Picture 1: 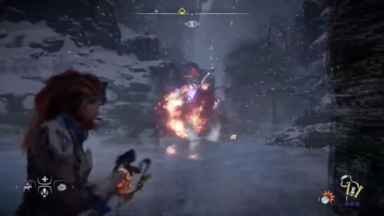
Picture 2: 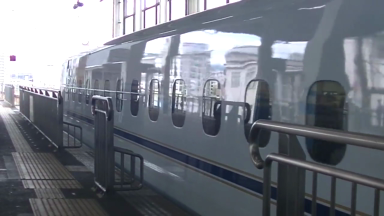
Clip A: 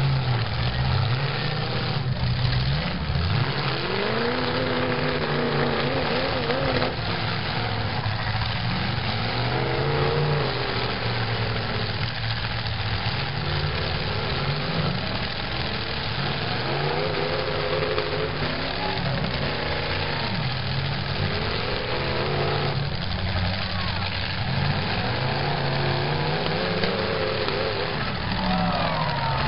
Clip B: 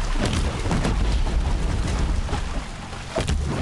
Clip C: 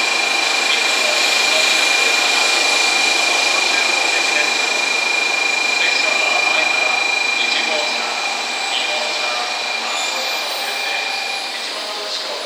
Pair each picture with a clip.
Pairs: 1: B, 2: C